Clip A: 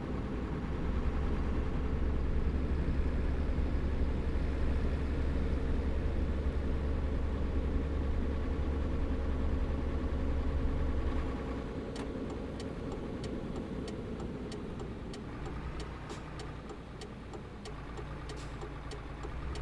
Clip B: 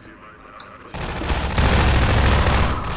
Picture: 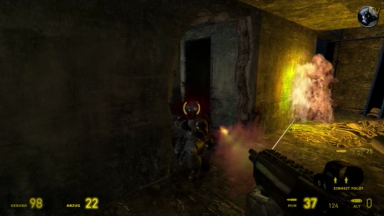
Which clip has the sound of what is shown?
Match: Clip B